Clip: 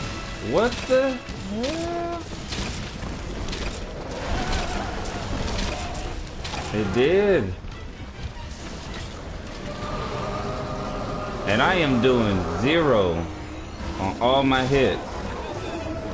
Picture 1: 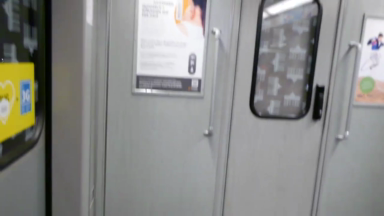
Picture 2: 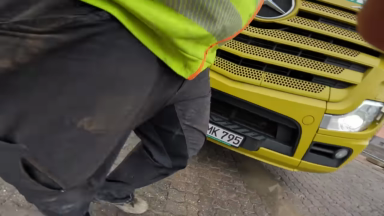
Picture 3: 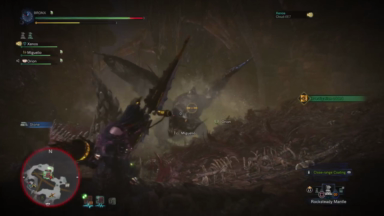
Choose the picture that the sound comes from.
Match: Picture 3